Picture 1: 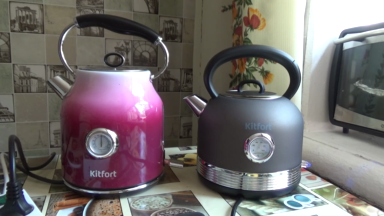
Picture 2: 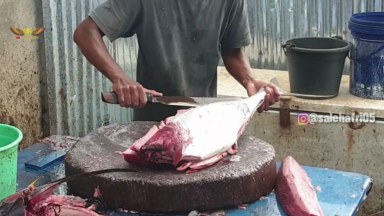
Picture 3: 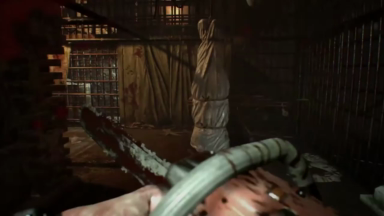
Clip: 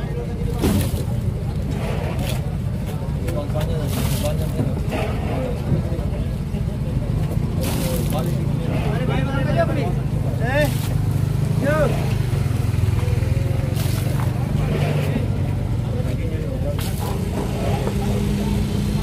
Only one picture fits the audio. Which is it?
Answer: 2